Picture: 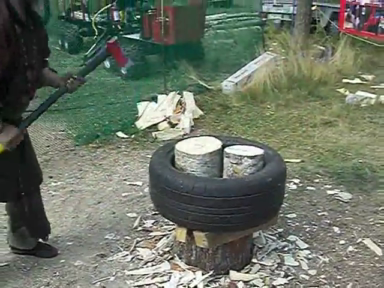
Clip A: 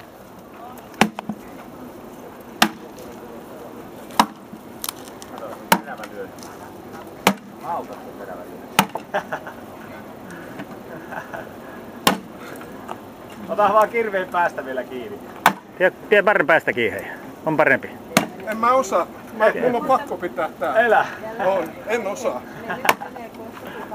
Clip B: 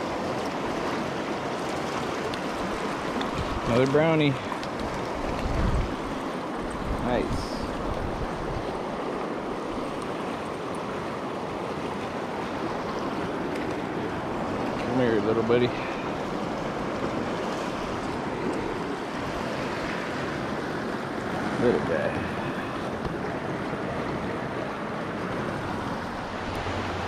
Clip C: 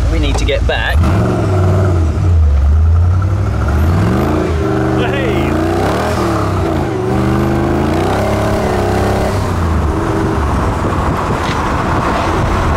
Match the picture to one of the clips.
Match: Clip A